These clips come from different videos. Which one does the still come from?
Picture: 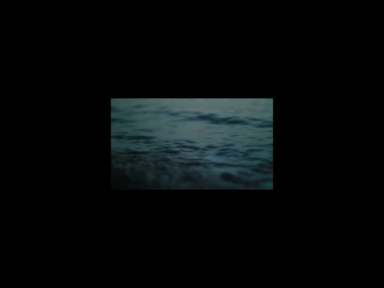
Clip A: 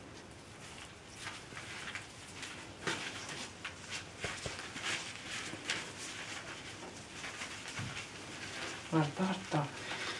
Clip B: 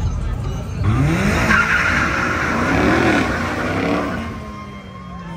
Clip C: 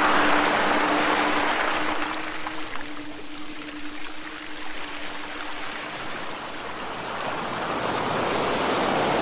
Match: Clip C